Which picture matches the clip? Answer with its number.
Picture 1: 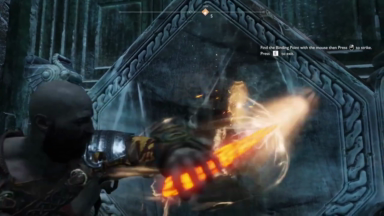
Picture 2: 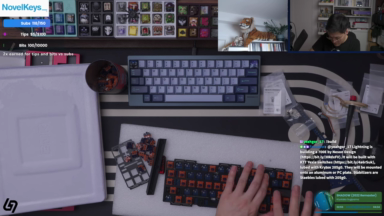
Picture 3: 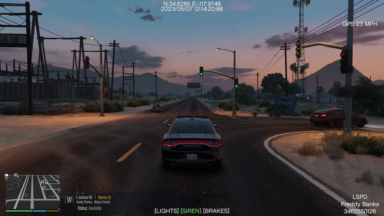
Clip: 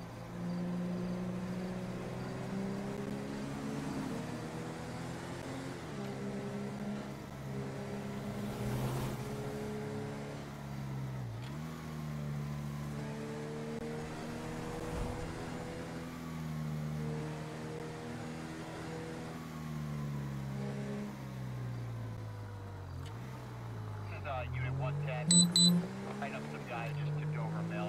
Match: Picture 3